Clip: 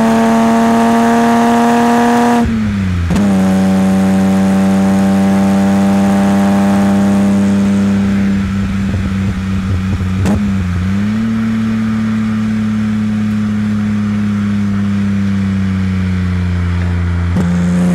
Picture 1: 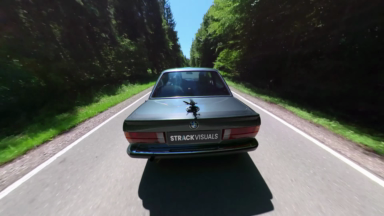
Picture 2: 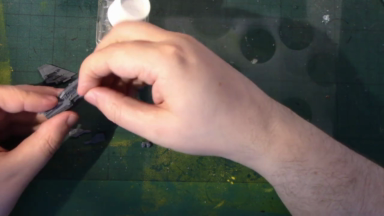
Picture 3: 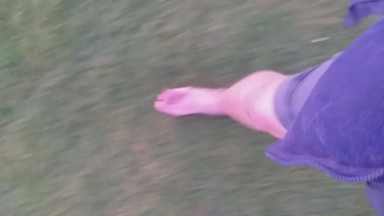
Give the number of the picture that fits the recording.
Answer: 1